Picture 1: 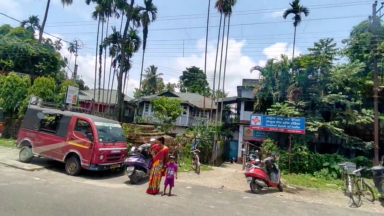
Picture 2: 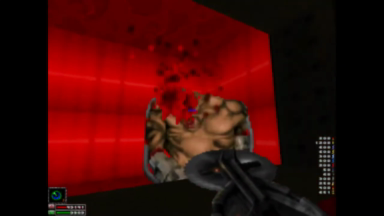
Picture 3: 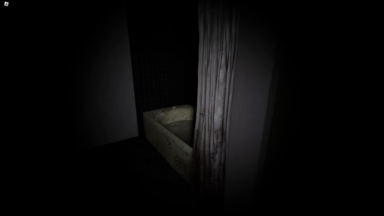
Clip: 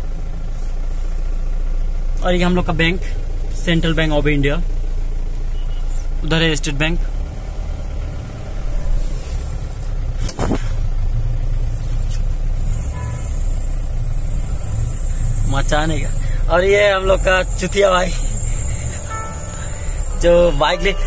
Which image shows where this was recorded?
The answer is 1